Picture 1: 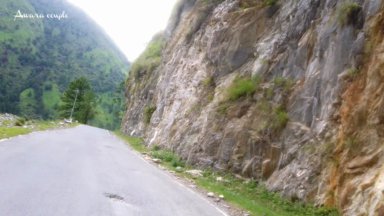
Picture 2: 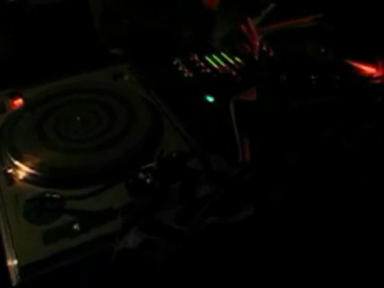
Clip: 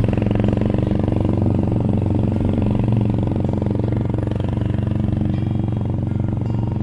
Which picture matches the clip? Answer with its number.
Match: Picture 1